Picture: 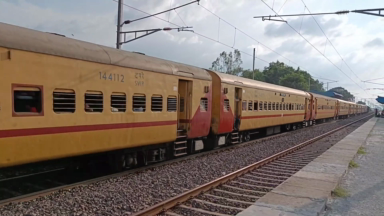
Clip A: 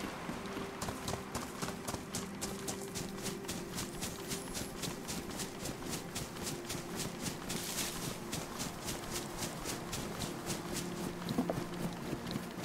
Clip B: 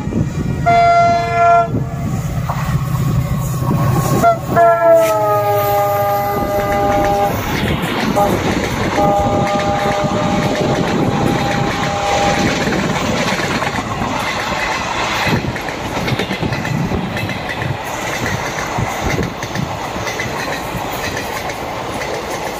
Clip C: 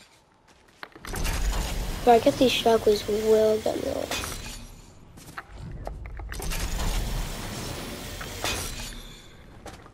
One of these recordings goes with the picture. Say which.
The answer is B